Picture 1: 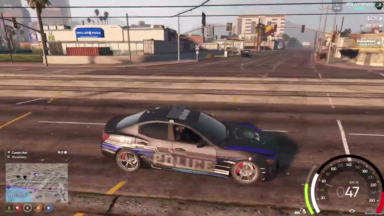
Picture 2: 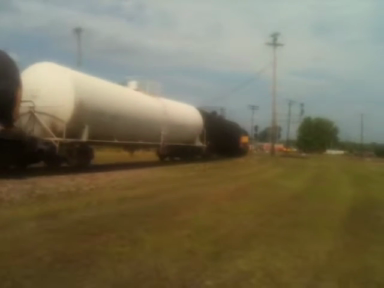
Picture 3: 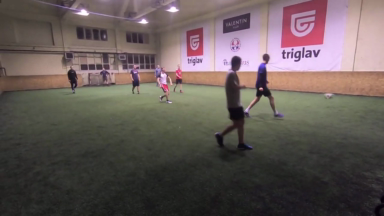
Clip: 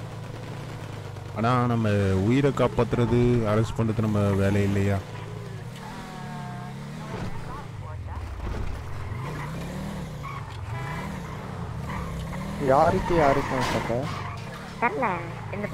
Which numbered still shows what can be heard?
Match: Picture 1